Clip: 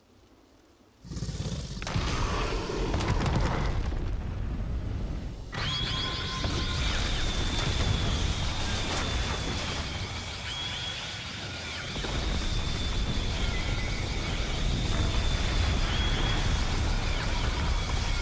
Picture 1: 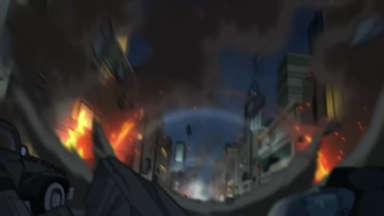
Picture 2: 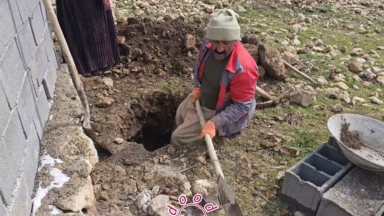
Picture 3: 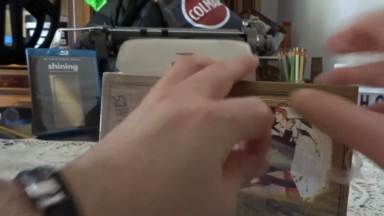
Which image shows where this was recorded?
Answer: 1